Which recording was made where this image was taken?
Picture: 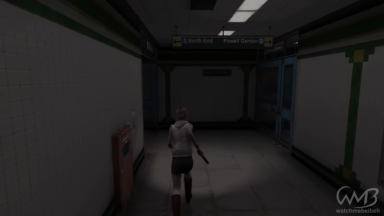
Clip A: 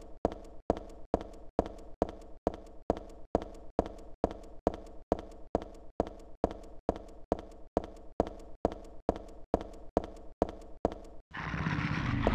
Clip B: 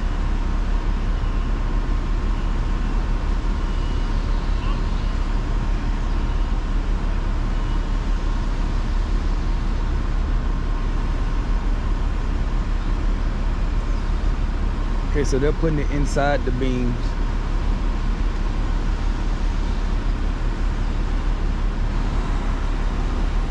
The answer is A